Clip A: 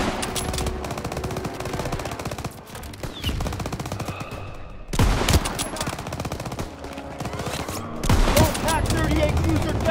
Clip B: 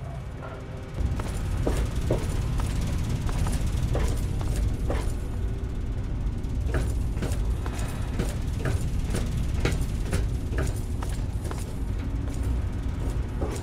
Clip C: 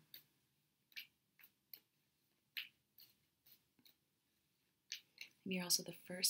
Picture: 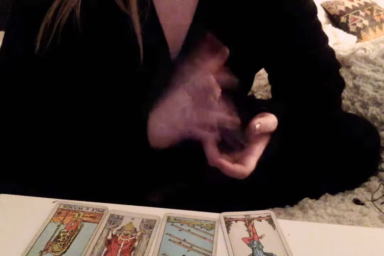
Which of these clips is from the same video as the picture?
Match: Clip C